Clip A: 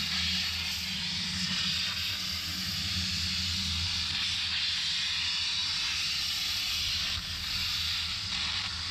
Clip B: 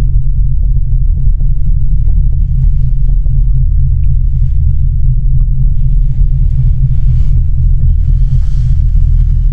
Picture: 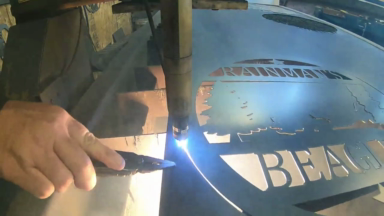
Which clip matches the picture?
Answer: A